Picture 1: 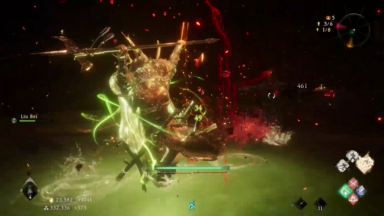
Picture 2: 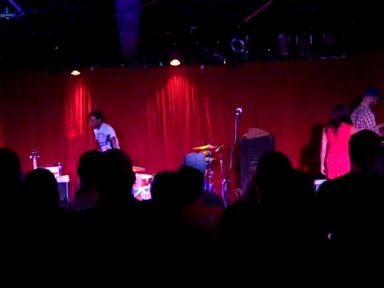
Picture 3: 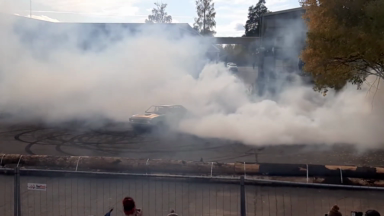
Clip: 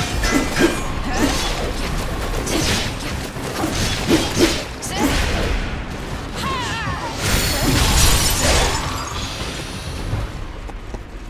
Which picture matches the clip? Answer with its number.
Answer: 1